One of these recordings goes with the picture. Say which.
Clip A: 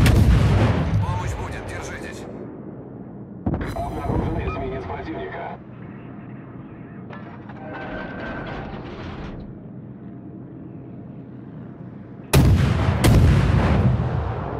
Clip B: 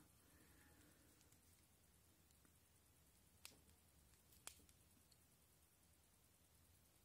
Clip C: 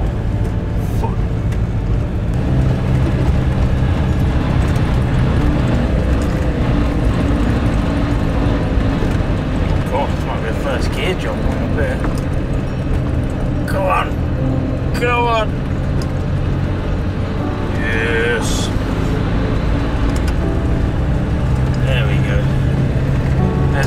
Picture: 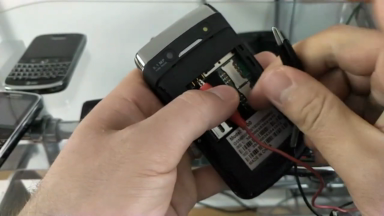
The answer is B